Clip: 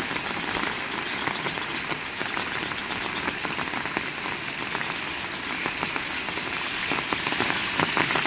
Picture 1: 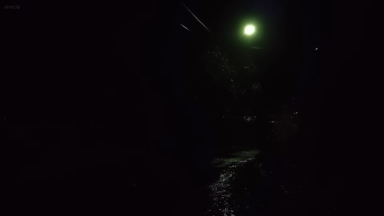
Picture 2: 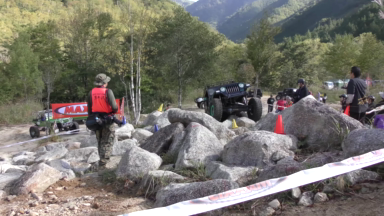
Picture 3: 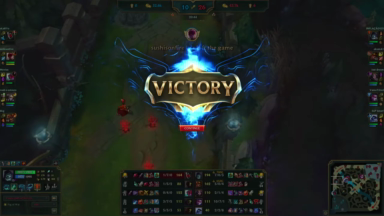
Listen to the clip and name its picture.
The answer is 1